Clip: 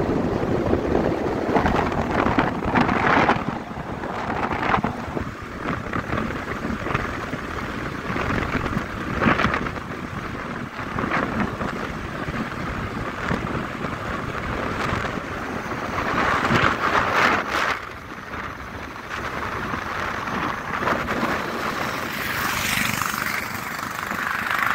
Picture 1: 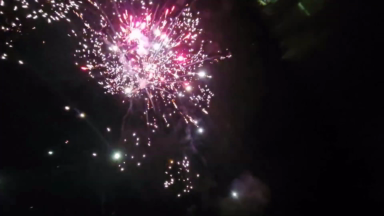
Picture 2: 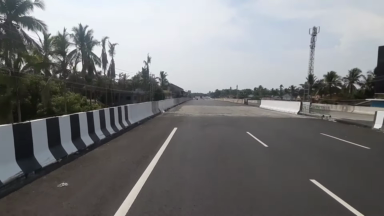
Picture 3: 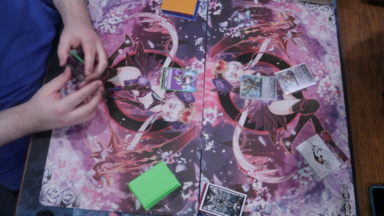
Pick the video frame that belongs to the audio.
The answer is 2